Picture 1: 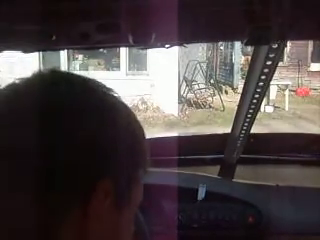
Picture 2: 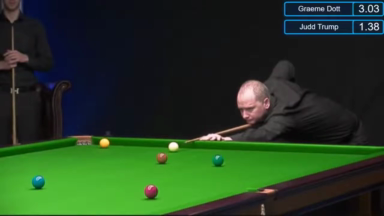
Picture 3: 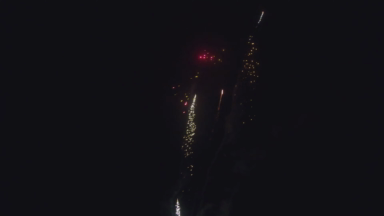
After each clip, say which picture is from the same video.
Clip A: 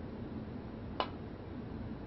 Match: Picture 2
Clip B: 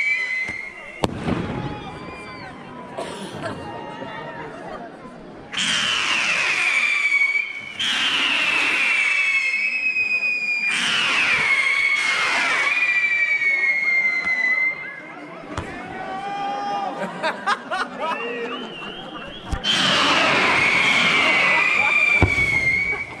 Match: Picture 3